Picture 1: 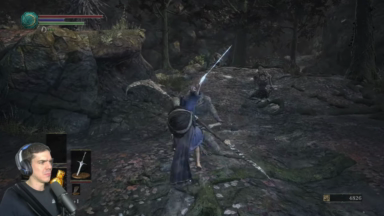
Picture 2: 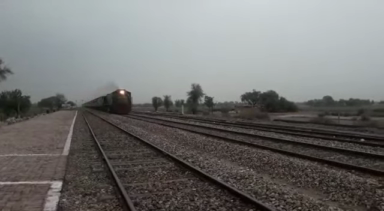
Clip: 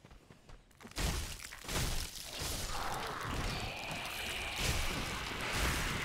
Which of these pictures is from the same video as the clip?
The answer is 1